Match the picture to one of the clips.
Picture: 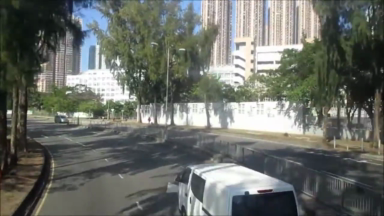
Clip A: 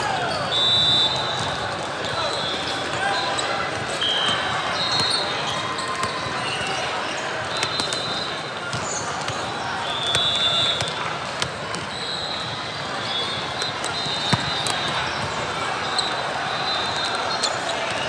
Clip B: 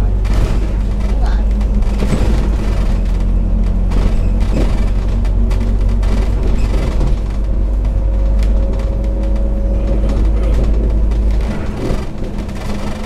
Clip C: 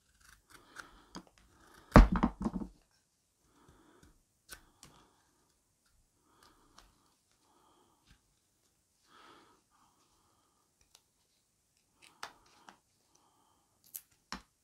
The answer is B